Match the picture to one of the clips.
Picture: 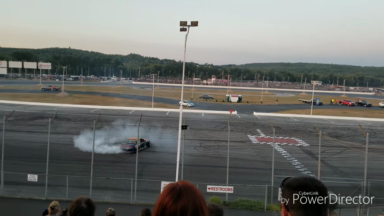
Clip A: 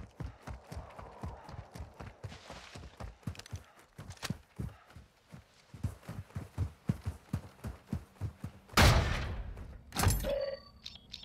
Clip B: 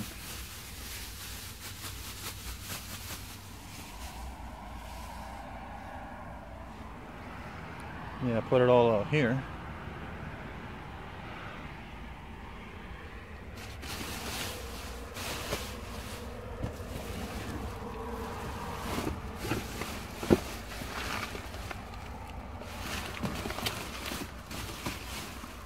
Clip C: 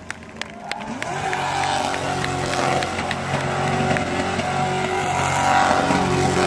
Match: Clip C